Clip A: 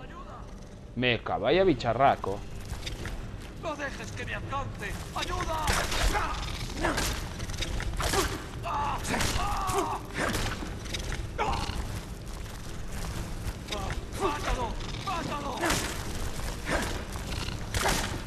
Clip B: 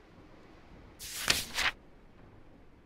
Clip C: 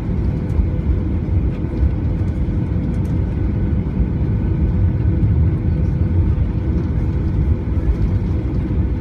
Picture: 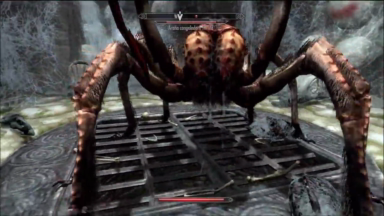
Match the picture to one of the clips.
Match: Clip A